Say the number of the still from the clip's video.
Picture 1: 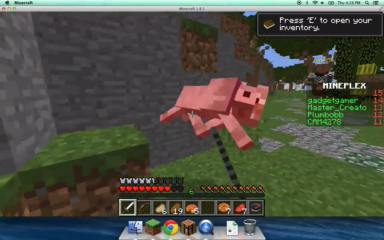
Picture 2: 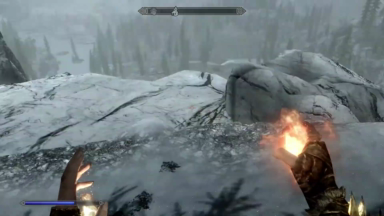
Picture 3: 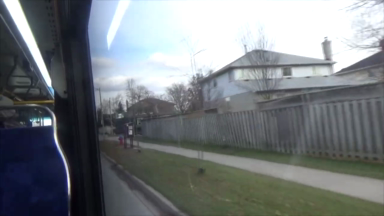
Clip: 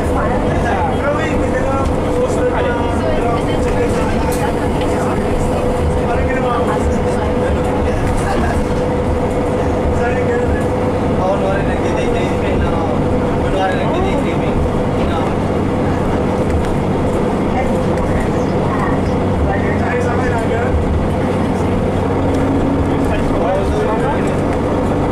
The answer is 3